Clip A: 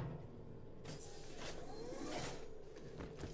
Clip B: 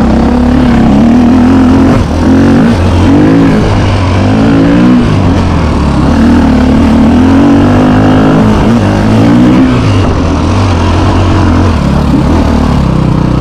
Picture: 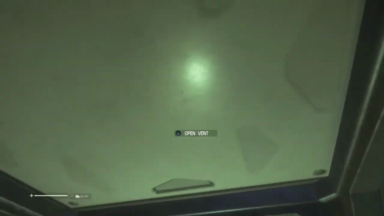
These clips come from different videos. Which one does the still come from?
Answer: A